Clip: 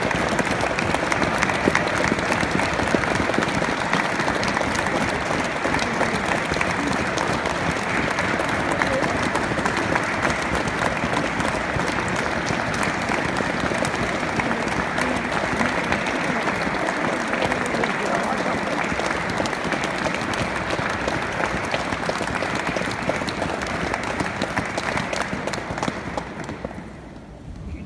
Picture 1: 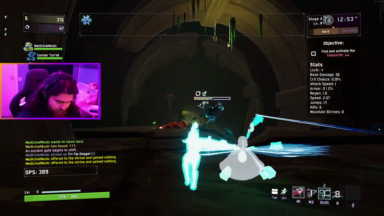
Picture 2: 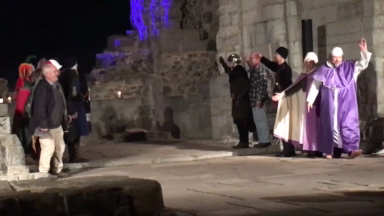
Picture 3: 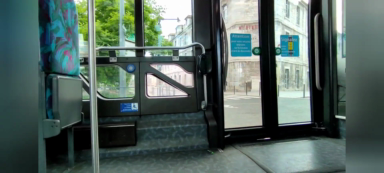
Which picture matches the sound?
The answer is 2